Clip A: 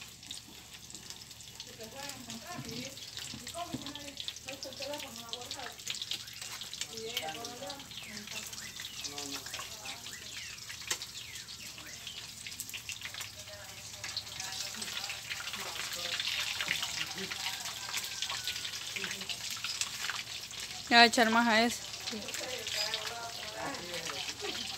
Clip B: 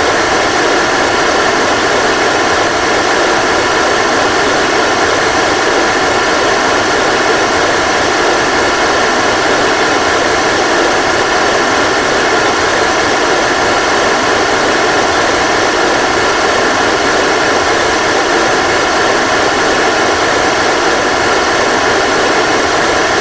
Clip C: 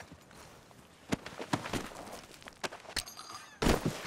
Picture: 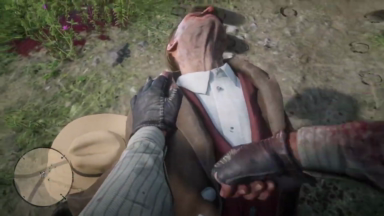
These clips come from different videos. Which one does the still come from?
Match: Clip C